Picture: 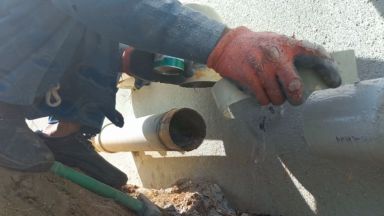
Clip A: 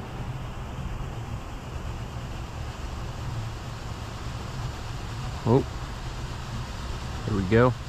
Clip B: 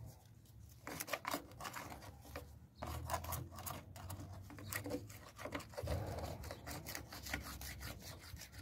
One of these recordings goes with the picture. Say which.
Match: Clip B